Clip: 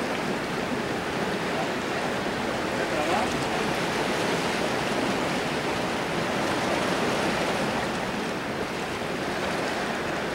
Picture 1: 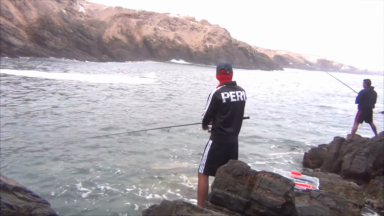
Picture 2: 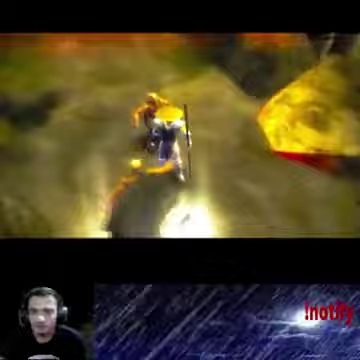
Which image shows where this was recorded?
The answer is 1